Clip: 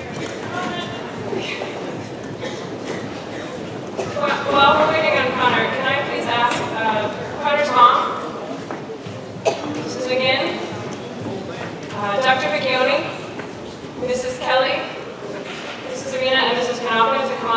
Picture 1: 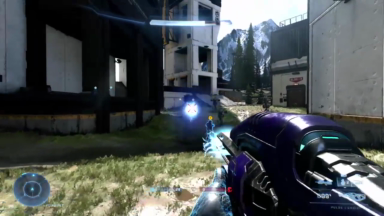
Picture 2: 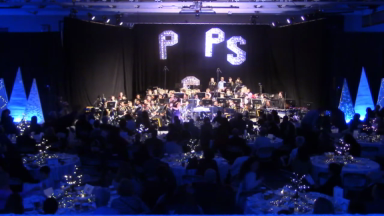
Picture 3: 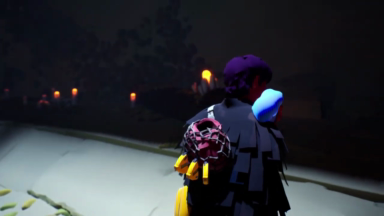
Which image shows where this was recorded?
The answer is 2